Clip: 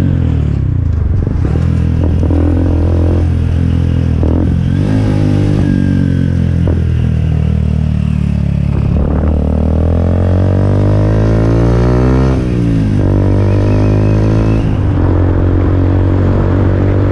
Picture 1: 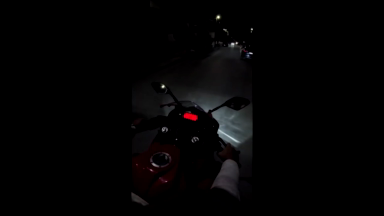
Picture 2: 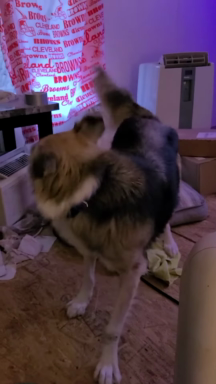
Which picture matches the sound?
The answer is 1